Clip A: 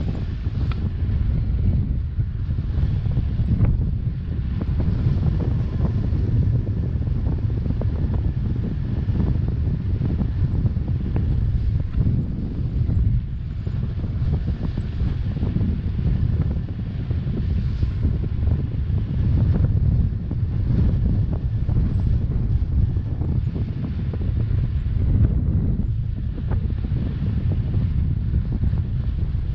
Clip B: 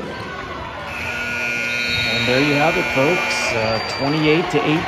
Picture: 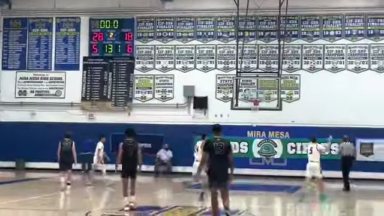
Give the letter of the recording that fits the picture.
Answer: B